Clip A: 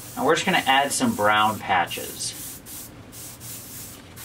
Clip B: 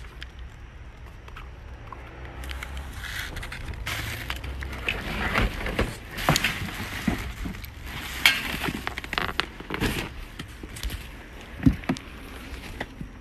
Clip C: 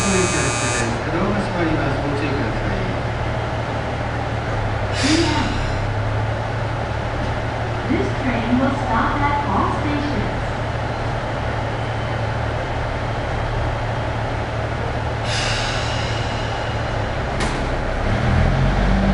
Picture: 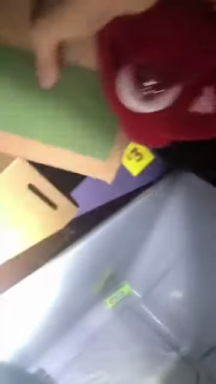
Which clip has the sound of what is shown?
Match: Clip B